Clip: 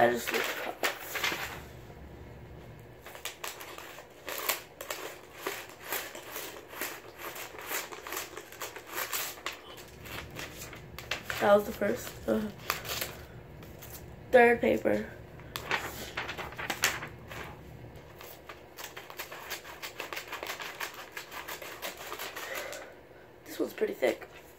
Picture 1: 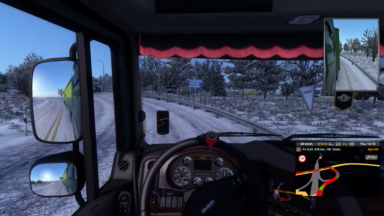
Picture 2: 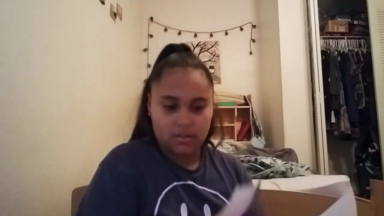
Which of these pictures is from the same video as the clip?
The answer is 2